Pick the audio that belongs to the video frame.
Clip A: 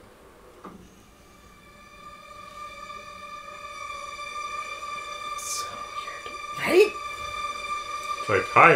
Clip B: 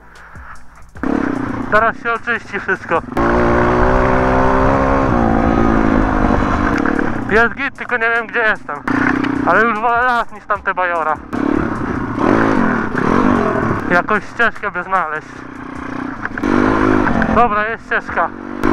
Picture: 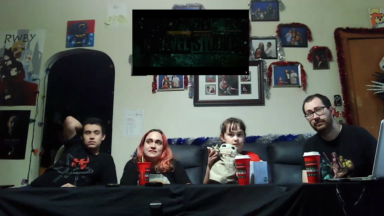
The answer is A